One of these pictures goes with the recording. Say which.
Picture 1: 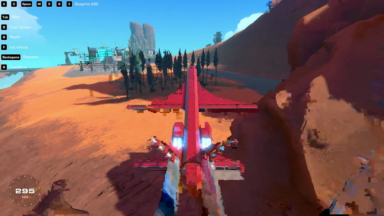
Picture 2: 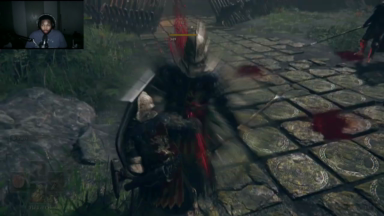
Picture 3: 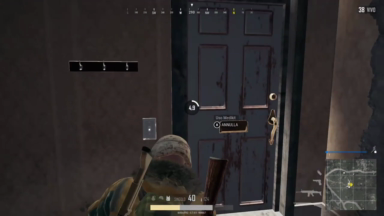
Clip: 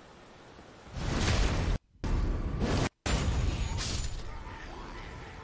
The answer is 2